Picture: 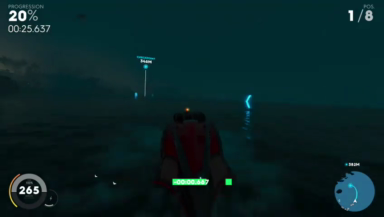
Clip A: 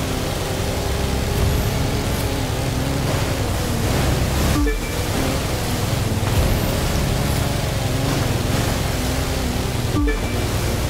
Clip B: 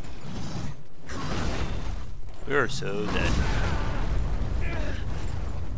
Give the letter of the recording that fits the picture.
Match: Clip A